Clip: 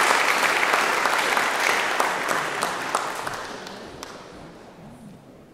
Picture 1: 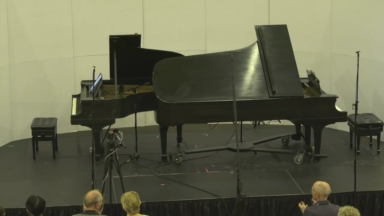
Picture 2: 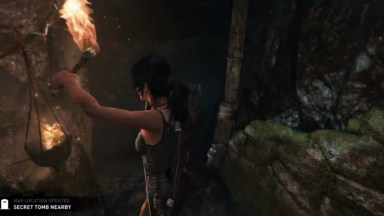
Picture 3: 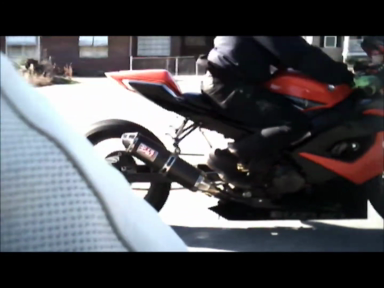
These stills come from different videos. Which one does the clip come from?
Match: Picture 1